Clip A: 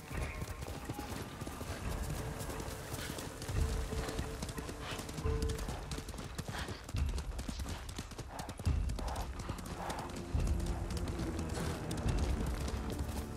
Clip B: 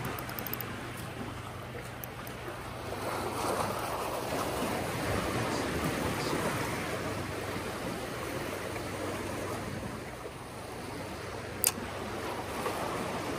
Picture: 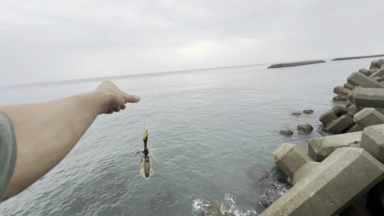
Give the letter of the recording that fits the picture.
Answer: B